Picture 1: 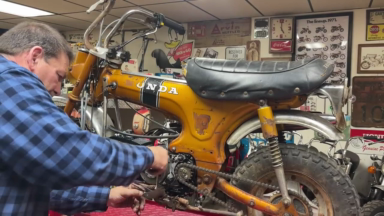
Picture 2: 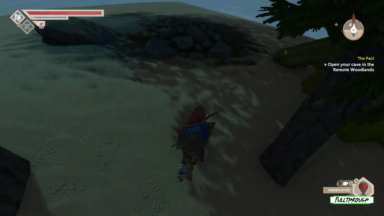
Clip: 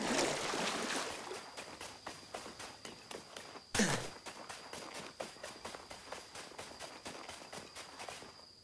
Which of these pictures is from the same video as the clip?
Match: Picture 2